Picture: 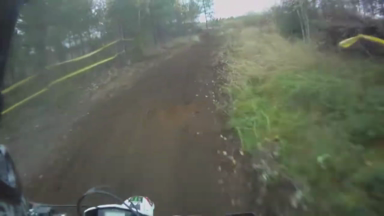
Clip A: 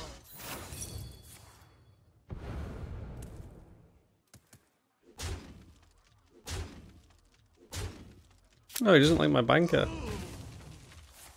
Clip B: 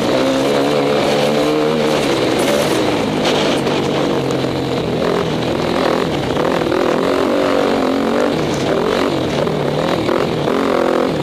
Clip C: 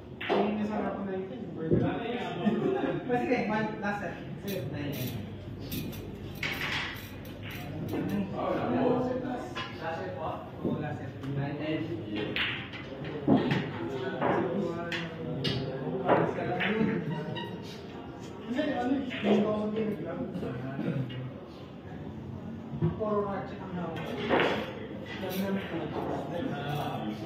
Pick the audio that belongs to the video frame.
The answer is B